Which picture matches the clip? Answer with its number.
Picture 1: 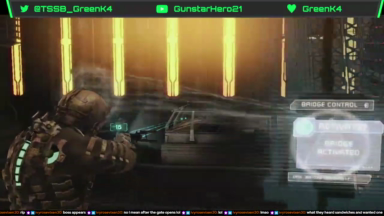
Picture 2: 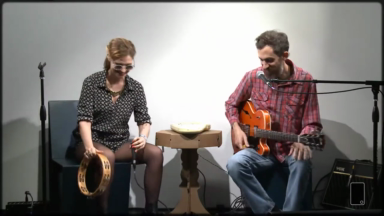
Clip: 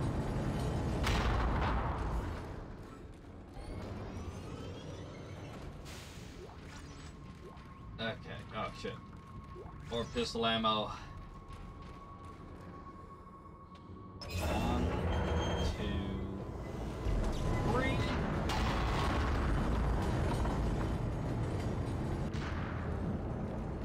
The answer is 1